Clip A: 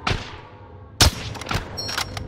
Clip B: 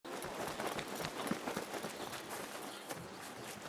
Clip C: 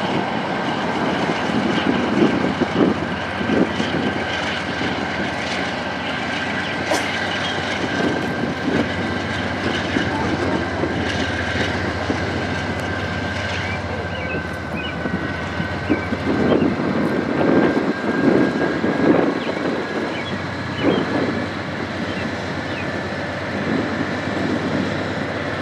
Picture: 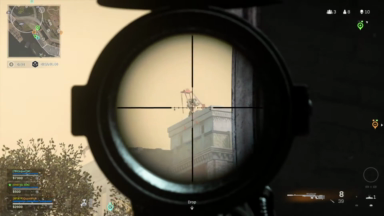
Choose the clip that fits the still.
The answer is A